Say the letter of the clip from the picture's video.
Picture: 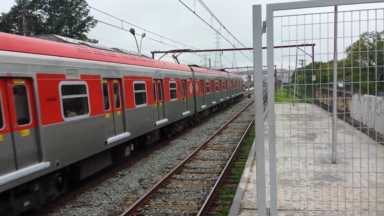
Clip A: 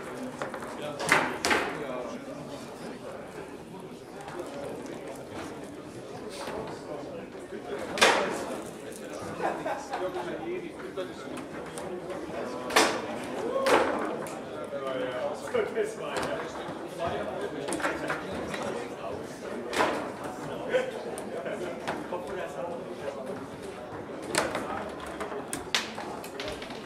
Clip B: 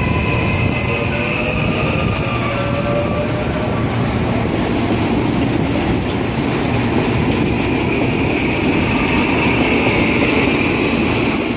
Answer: B